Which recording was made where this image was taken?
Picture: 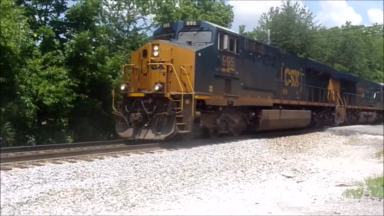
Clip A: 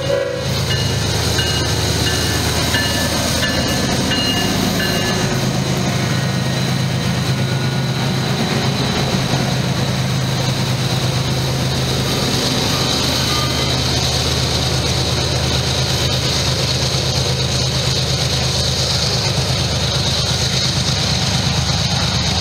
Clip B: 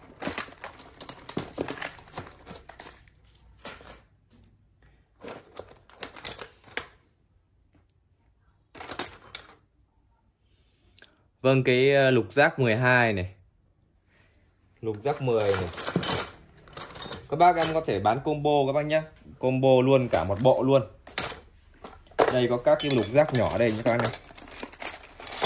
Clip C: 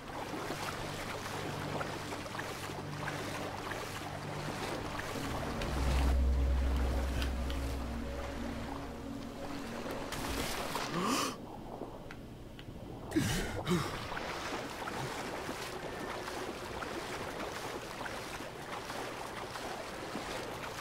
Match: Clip A